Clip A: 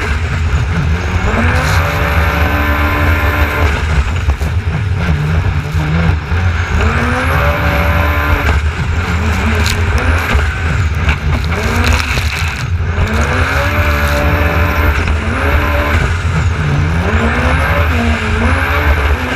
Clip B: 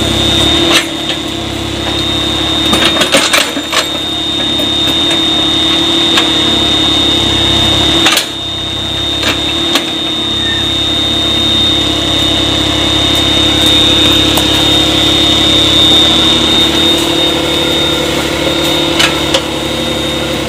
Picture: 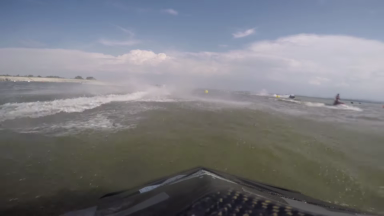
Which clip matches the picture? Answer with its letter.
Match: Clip A